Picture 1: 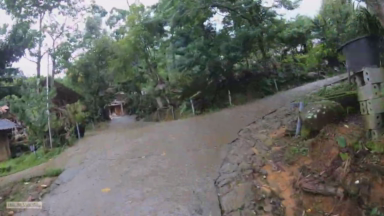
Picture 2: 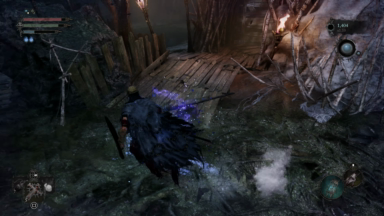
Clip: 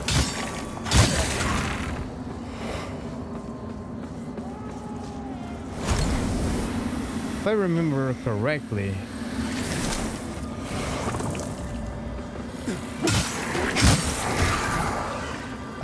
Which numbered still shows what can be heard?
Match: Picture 2